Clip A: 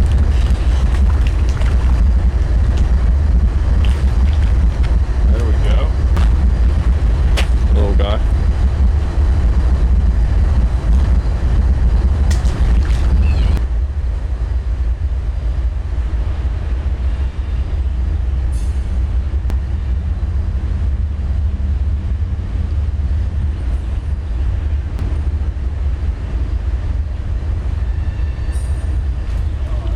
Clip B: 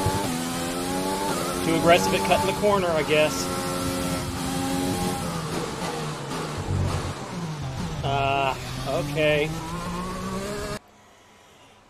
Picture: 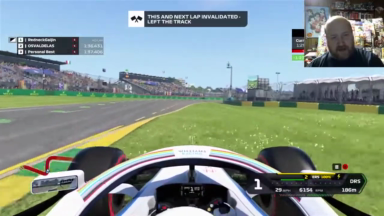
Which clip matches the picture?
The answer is B